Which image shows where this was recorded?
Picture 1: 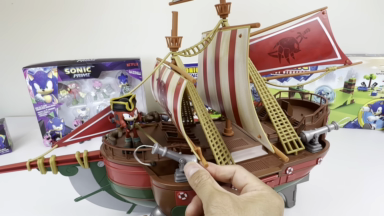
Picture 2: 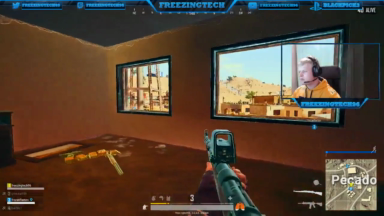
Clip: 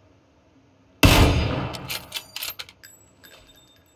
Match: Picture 2